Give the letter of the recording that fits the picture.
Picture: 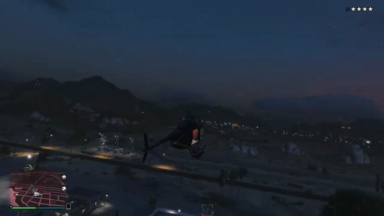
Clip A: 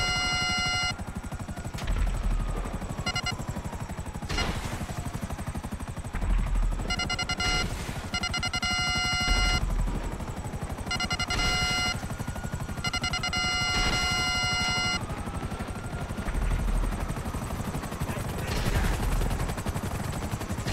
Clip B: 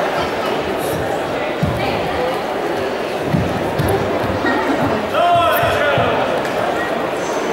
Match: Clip A